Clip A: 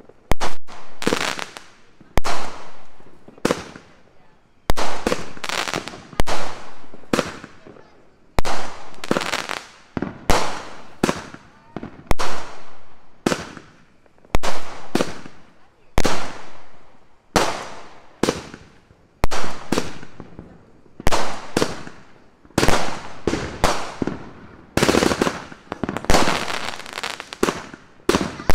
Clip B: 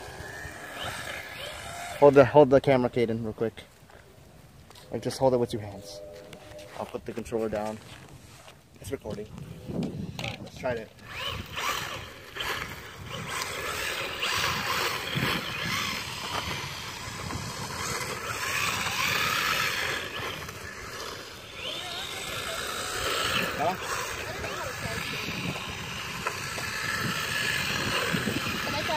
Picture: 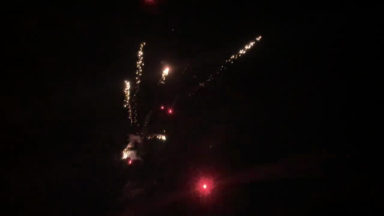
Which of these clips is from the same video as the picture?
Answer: A